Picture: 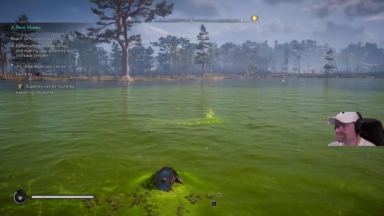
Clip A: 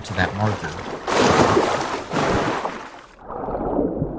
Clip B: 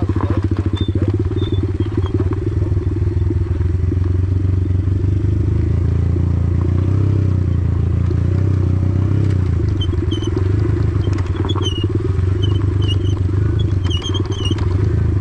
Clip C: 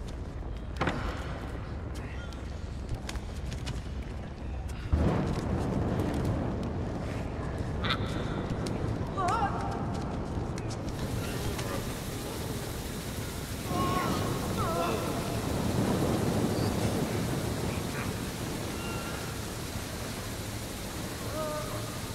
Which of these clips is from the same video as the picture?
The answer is A